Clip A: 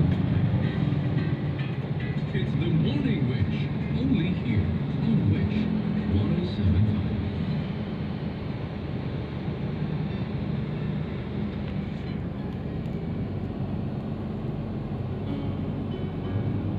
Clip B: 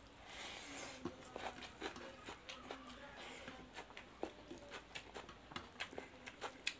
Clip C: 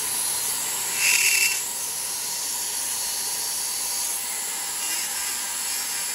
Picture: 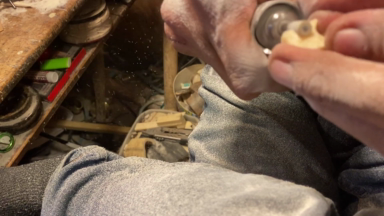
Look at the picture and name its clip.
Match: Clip C